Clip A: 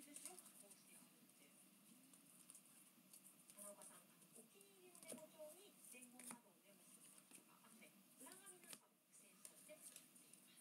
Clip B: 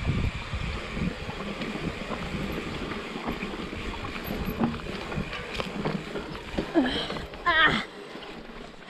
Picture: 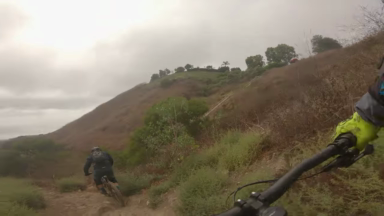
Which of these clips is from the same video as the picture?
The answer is B